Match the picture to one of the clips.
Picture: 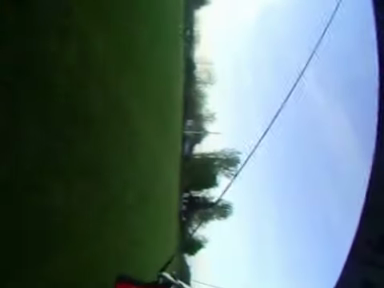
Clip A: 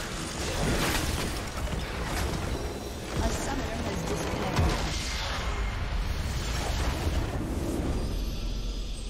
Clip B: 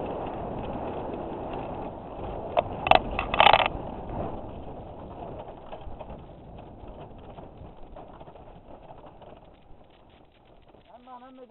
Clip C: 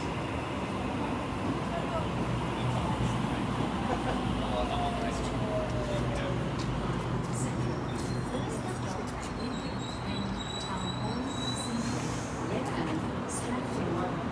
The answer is B